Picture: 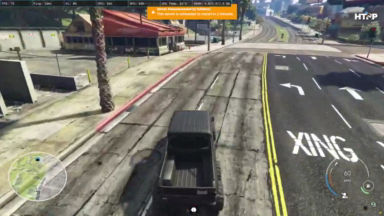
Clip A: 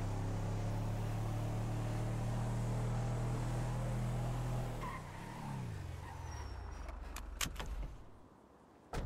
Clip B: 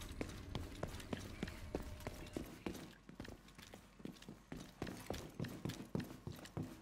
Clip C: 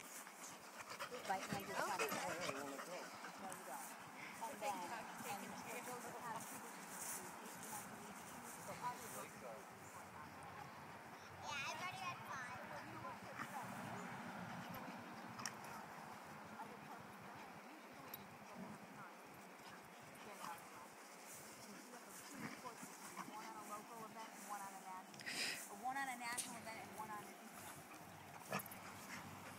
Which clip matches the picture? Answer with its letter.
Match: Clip A